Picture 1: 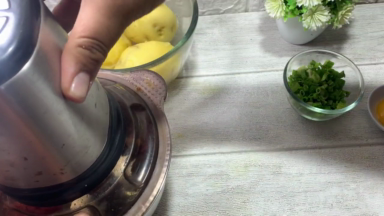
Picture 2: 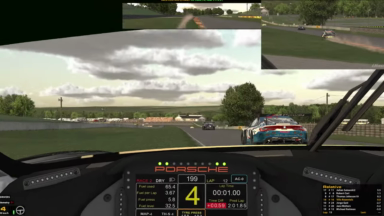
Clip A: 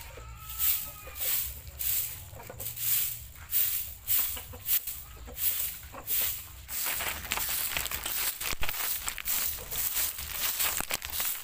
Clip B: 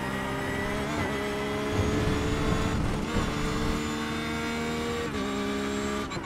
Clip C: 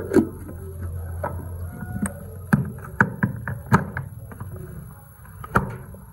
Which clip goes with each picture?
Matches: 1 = C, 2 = B